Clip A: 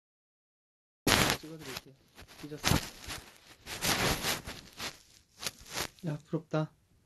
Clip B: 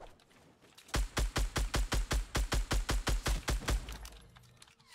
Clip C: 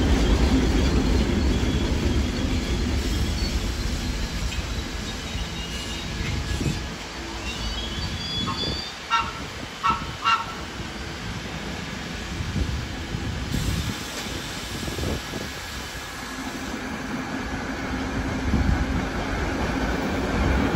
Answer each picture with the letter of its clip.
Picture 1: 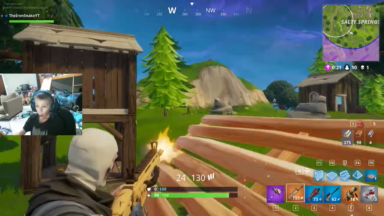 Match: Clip B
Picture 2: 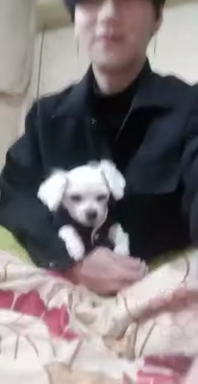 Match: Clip A